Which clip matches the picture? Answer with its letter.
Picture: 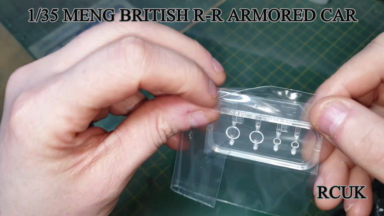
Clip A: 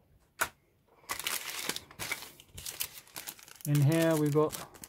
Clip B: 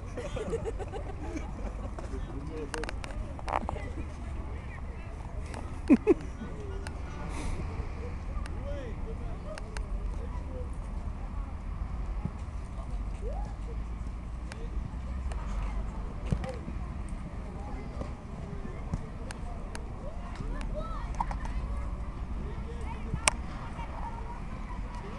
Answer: A